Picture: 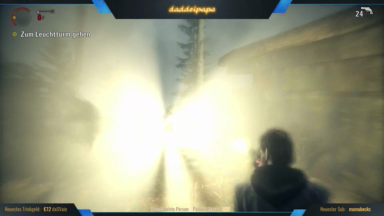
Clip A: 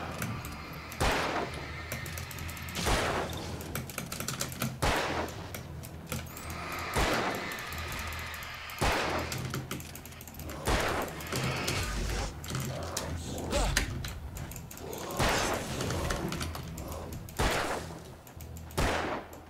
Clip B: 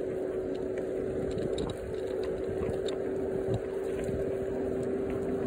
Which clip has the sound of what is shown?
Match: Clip A